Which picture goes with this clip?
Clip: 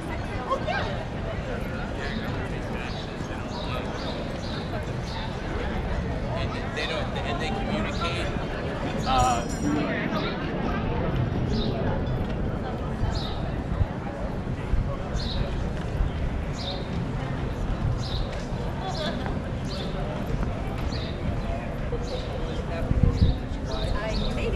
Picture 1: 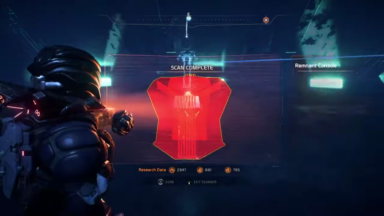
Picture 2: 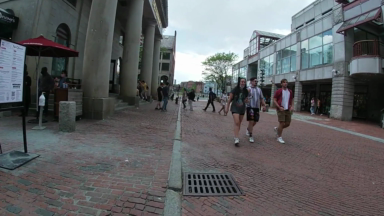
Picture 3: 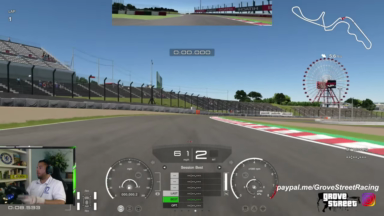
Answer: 2